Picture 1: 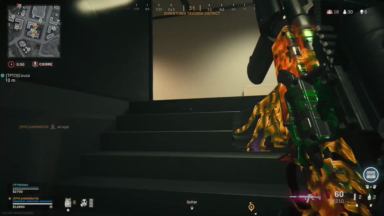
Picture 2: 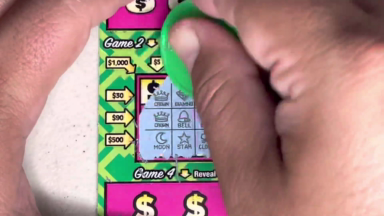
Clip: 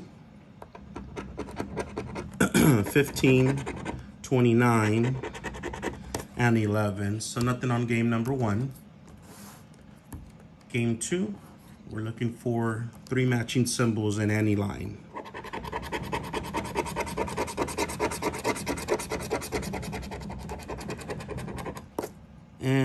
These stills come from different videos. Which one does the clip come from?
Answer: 2